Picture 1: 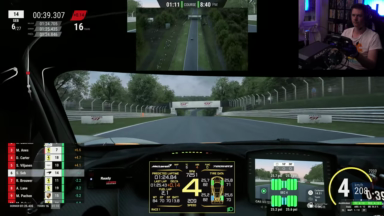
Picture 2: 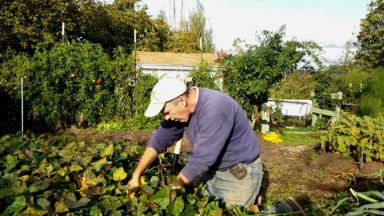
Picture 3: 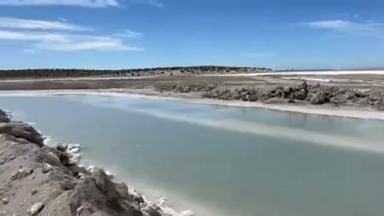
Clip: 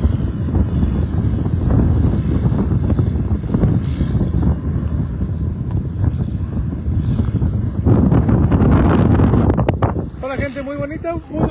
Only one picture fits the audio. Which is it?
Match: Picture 3